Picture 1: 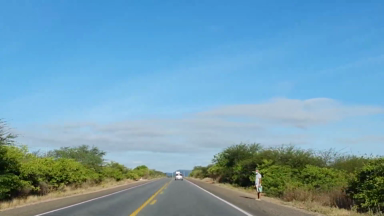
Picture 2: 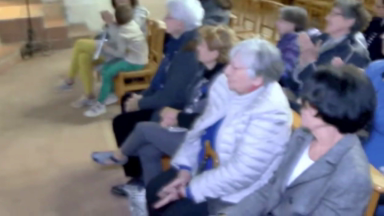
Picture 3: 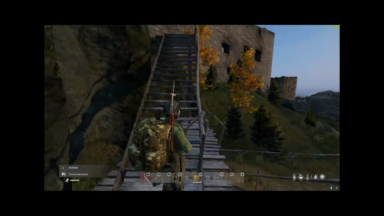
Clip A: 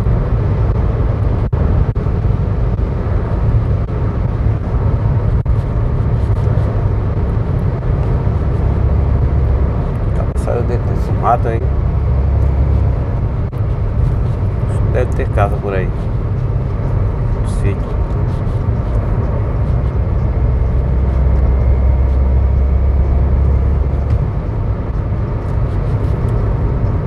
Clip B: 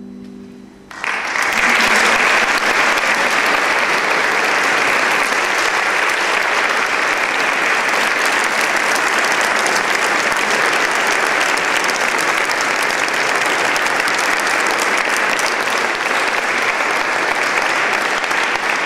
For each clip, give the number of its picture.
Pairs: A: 1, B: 2